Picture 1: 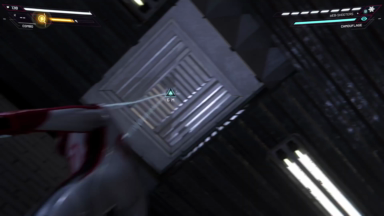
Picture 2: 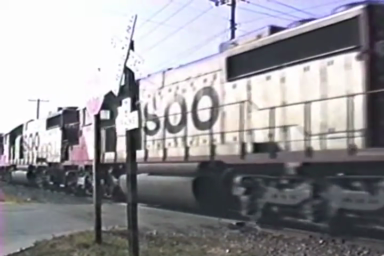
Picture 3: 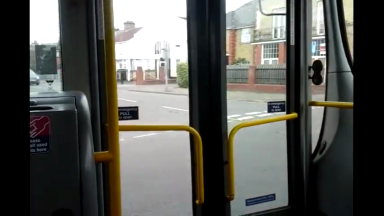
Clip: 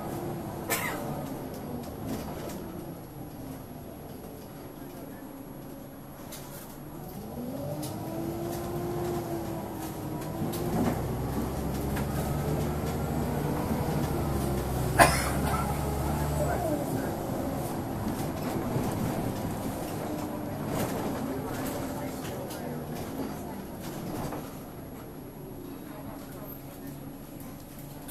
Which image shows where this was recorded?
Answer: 3